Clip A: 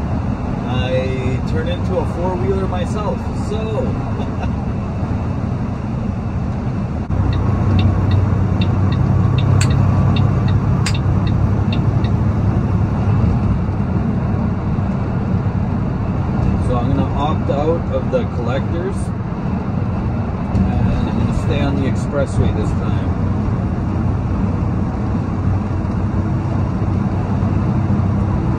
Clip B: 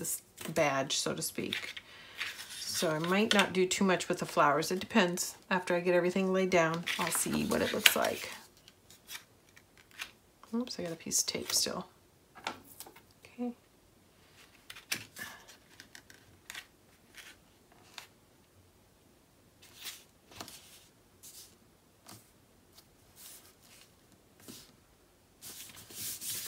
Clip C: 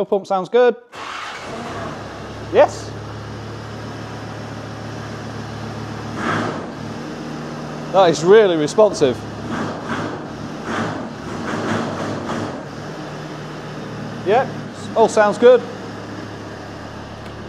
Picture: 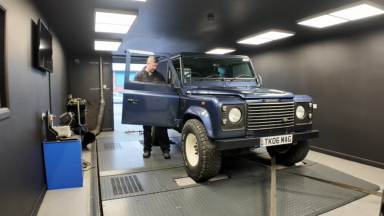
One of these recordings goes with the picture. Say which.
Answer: C